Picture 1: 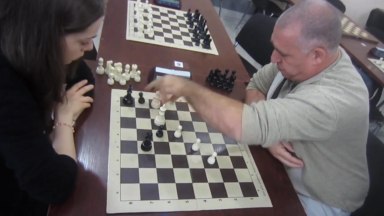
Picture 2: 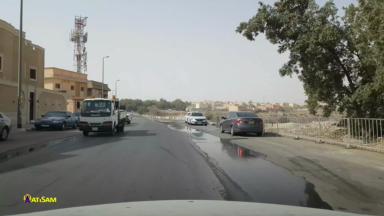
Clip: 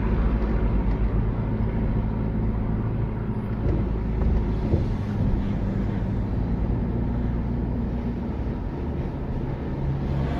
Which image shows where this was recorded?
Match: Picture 2